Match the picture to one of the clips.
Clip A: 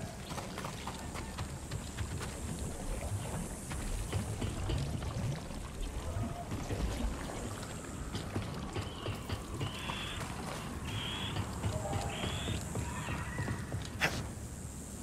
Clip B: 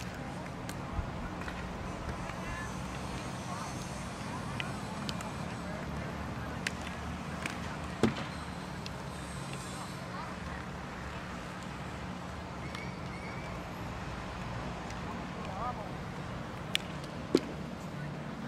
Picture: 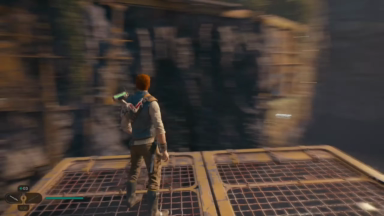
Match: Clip A